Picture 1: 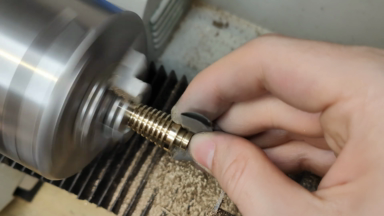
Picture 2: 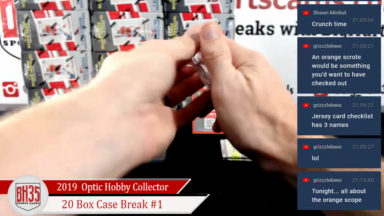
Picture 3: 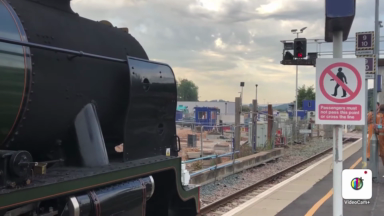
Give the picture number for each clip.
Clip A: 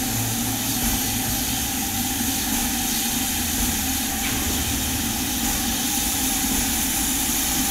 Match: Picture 3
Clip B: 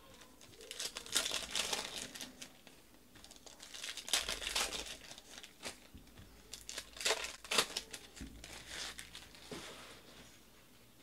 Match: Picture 2